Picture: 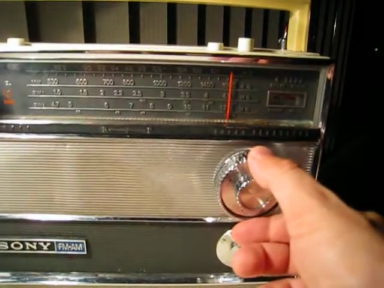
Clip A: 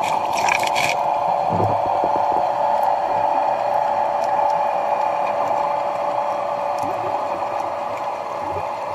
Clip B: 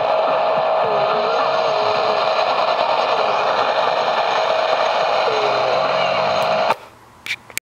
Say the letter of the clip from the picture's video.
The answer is B